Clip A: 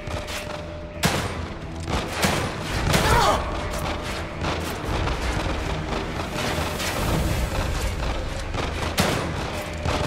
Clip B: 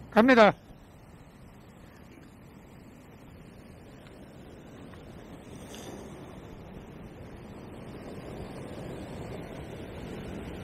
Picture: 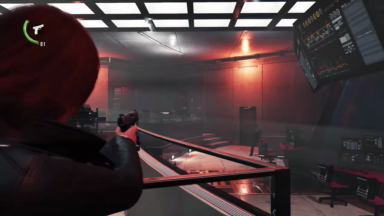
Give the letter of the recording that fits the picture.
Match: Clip A